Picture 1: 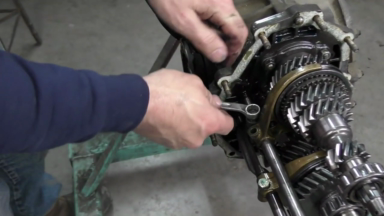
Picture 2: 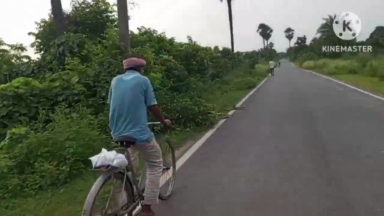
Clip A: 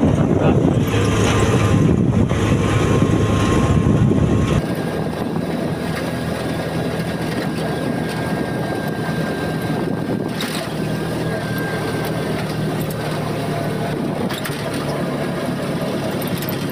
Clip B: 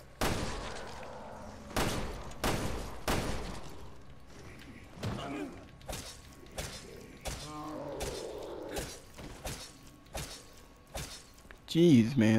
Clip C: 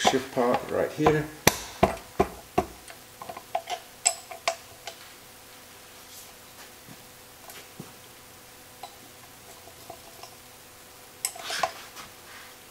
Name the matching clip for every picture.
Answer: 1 C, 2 A